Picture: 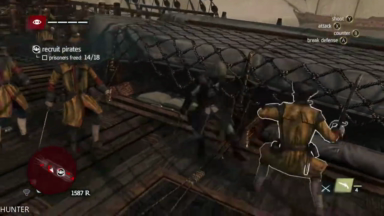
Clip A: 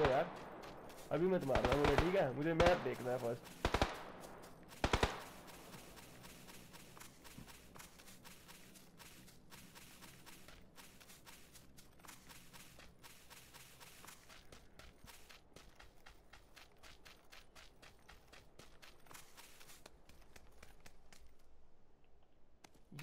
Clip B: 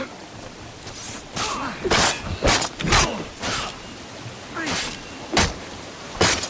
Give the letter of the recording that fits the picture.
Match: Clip B